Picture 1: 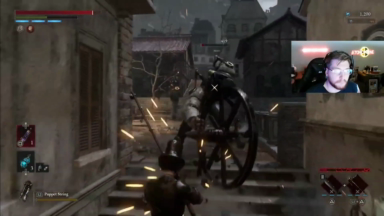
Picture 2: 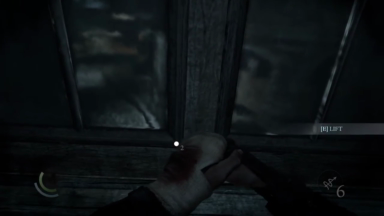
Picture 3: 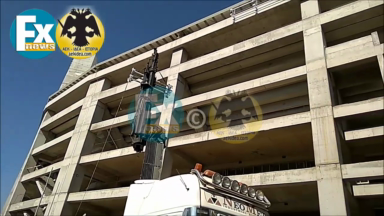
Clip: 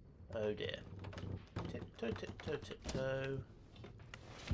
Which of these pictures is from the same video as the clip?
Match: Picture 2